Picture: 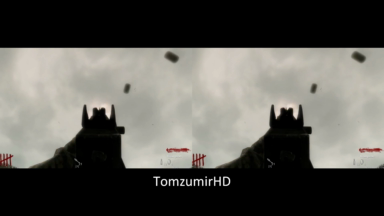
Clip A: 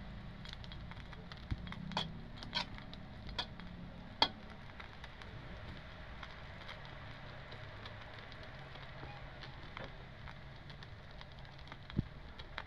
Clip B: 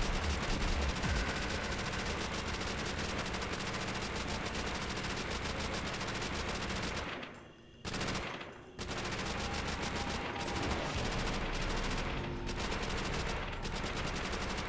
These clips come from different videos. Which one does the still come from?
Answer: B